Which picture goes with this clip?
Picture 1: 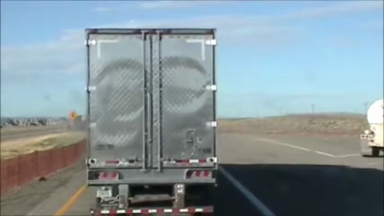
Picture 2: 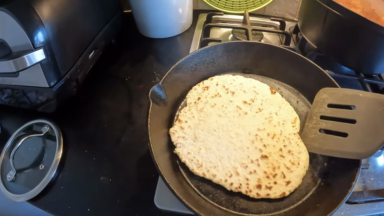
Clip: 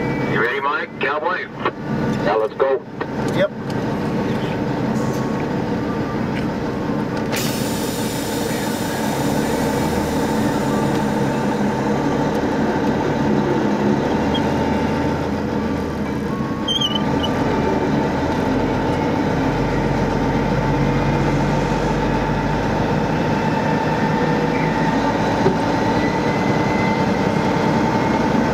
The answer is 1